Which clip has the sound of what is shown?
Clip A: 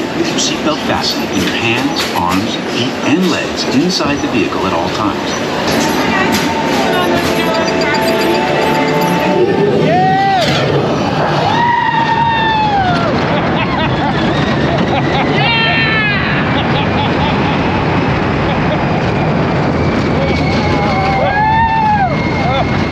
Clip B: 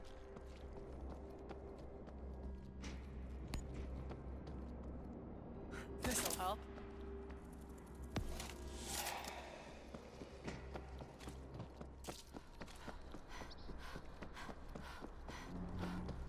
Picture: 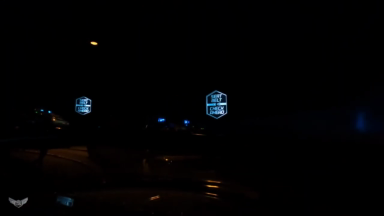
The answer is A